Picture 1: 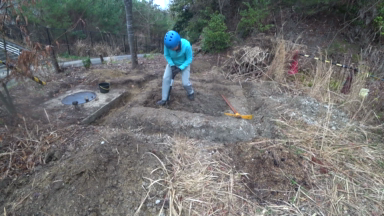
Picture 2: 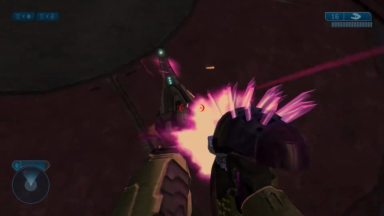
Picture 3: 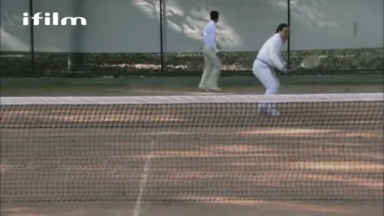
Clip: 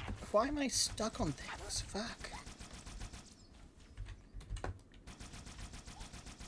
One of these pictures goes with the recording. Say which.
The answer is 2